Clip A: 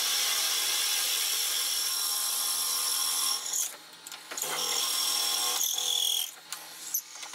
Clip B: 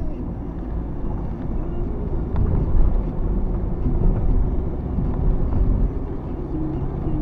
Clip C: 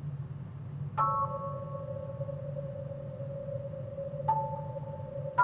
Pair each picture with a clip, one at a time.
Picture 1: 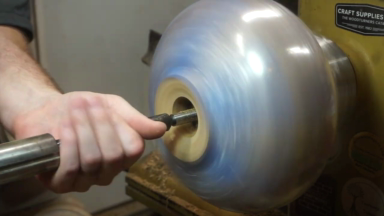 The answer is A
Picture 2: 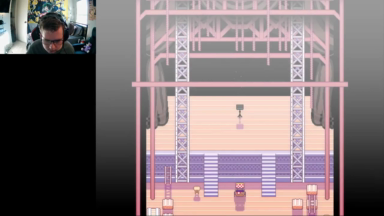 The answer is C